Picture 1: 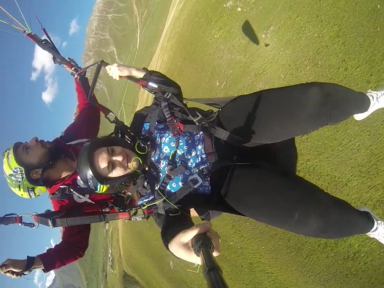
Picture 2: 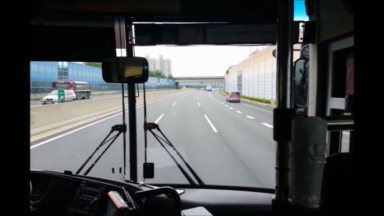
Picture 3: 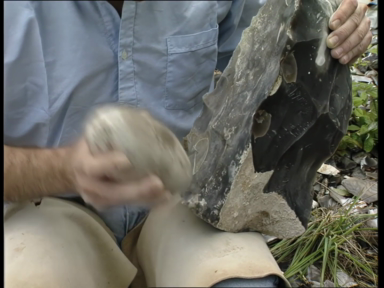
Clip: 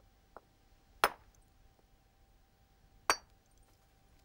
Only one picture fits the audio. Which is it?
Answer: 3